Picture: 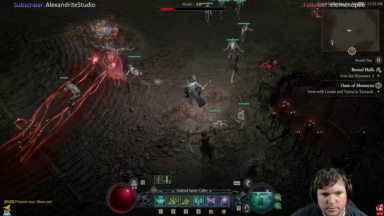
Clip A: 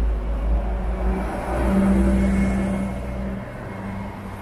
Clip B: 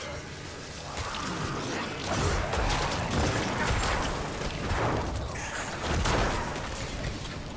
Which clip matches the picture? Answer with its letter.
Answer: B